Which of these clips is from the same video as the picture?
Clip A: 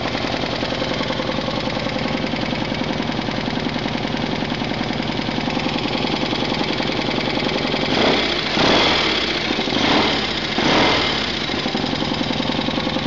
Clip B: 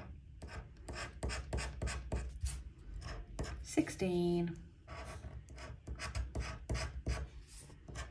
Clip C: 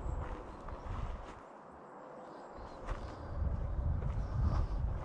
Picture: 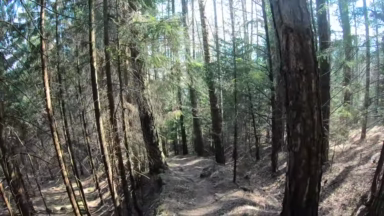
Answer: C